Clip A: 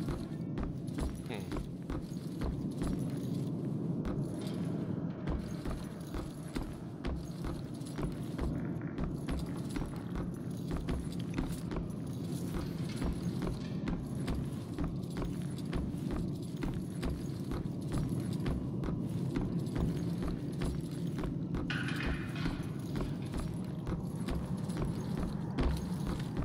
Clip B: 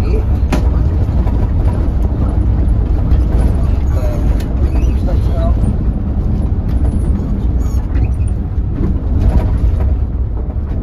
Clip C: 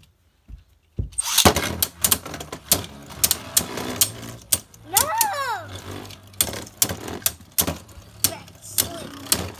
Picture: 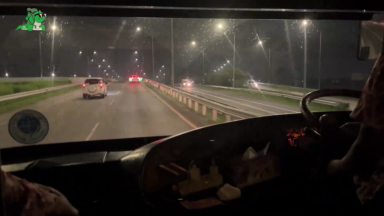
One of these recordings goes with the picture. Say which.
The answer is B